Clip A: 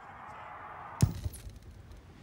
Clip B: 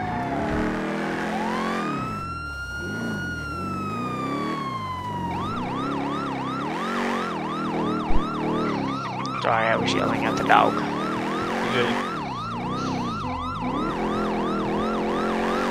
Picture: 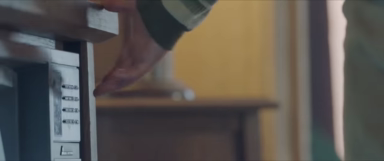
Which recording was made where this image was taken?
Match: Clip A